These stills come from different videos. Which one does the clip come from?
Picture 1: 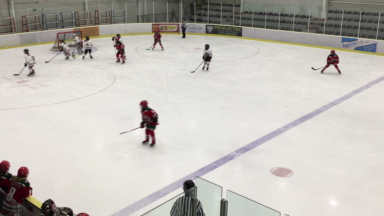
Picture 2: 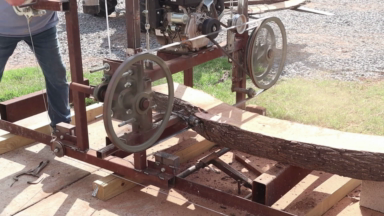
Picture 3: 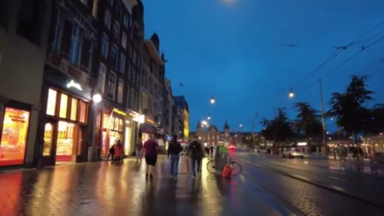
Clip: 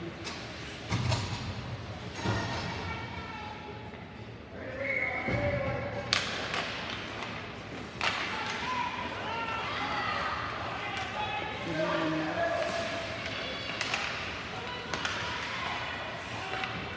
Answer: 1